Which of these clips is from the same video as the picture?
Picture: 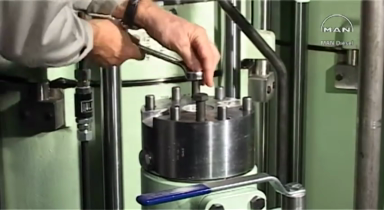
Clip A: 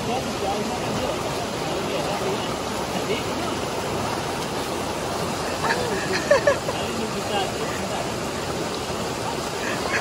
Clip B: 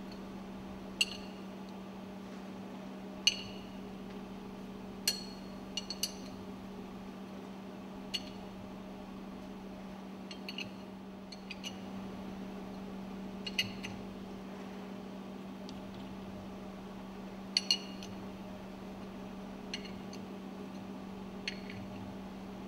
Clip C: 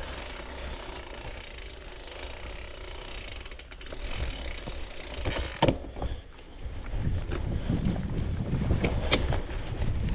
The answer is B